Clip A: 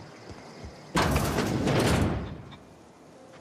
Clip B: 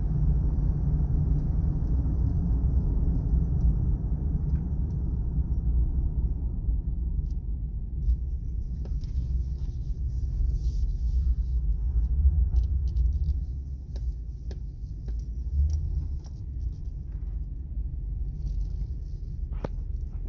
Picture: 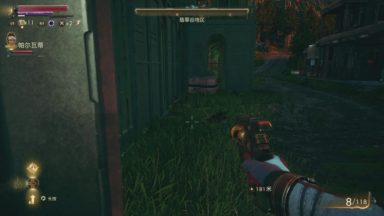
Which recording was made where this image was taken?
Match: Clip A